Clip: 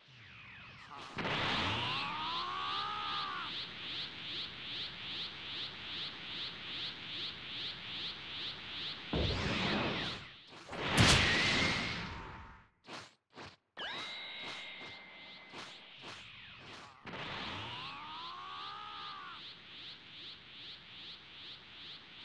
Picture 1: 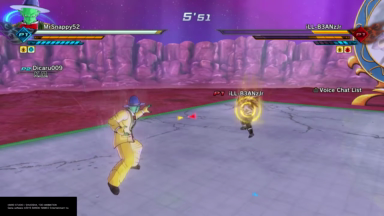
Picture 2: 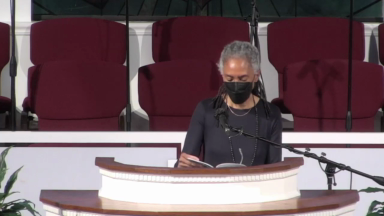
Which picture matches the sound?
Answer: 1